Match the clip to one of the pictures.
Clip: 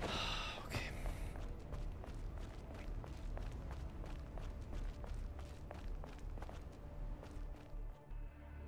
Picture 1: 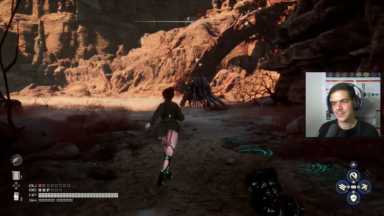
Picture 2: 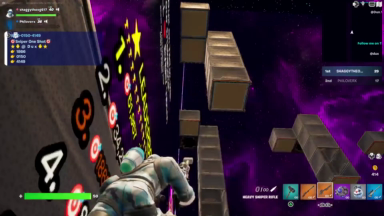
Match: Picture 1